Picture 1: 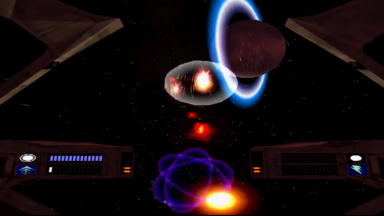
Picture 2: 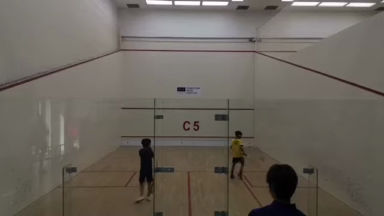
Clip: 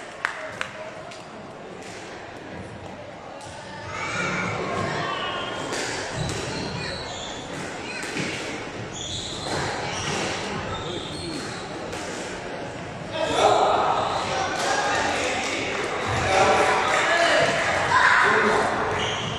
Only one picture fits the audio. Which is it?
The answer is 2